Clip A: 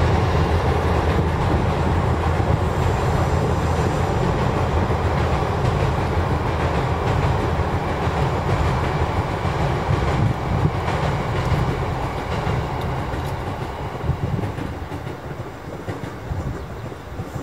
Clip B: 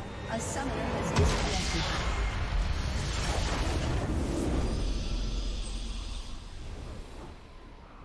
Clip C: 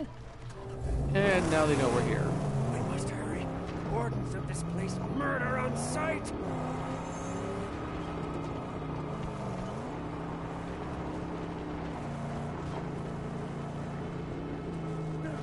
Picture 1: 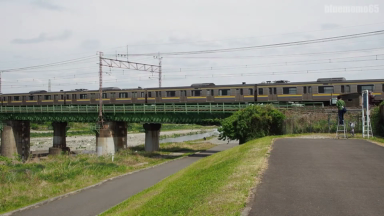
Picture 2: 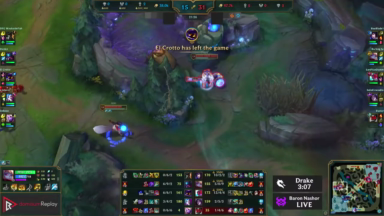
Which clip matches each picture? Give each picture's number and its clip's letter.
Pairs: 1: A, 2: B